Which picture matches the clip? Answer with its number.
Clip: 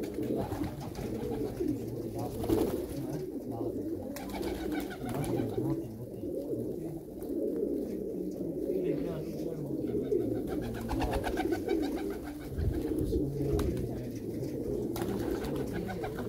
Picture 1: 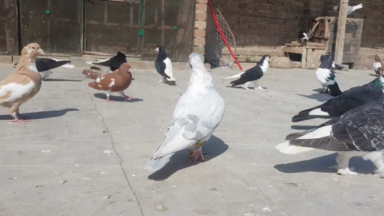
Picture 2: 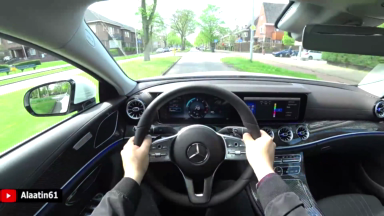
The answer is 1